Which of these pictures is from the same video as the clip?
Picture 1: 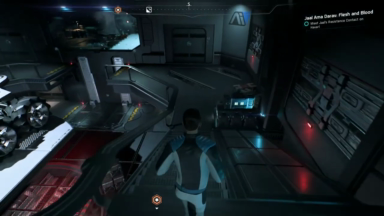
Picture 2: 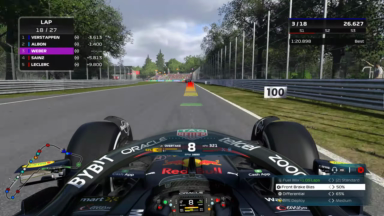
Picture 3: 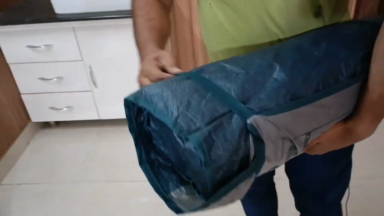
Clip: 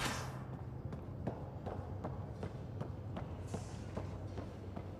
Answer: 1